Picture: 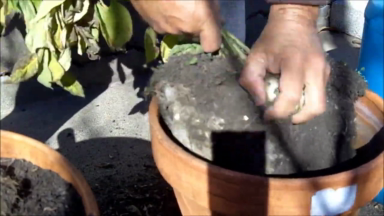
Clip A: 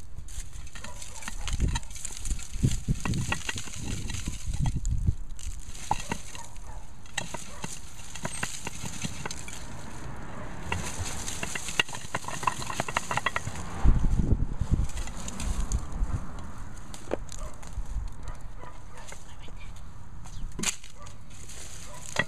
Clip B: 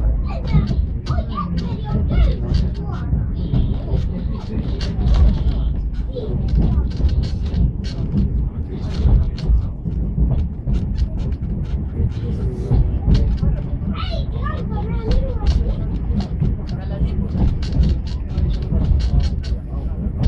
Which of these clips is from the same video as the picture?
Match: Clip A